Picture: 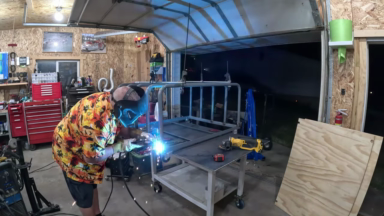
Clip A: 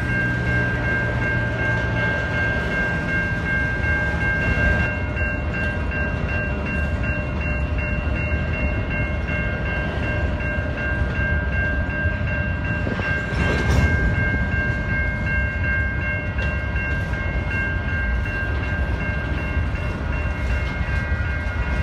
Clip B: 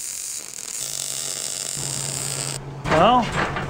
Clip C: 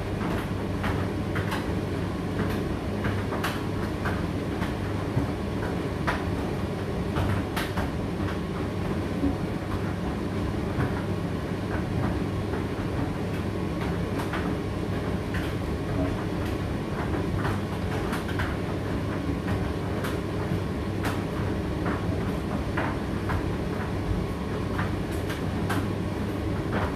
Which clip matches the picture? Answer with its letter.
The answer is B